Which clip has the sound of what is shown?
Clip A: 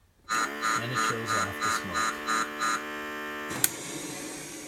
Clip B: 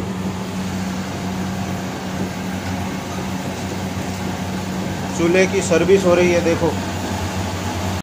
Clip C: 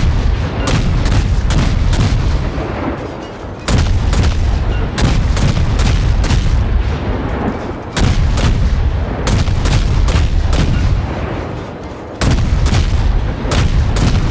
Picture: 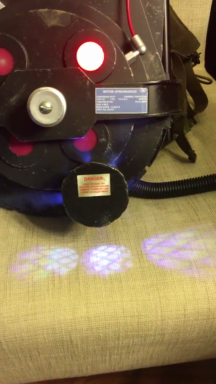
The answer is A